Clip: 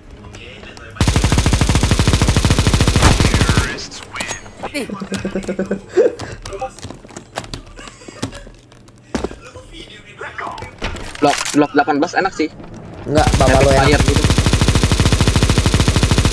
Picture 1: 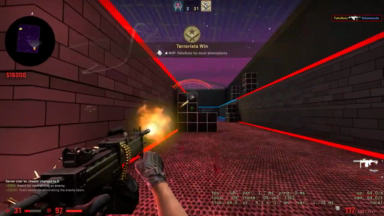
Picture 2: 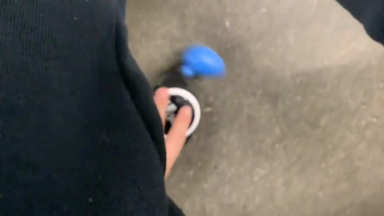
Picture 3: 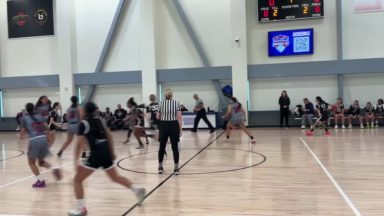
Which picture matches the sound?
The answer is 1